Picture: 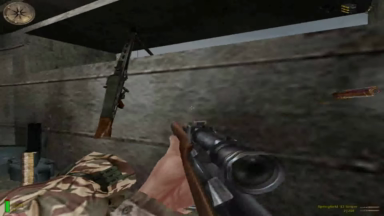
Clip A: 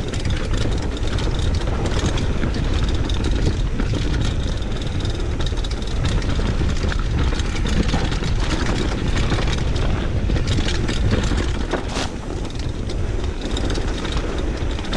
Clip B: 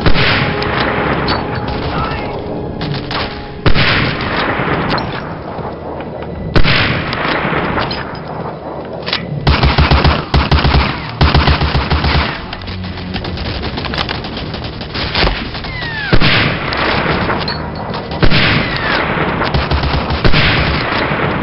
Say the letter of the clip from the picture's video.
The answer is B